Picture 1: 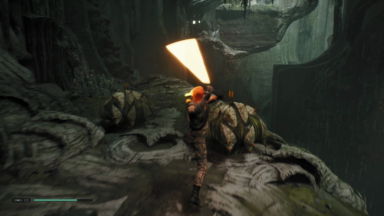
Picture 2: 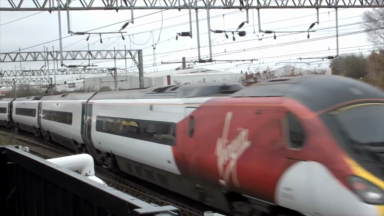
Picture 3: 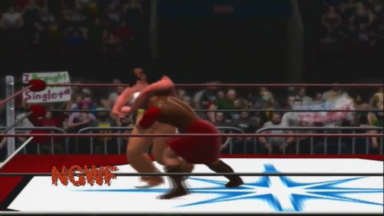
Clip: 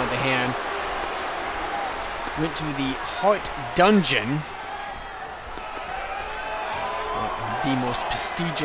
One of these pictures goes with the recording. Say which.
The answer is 3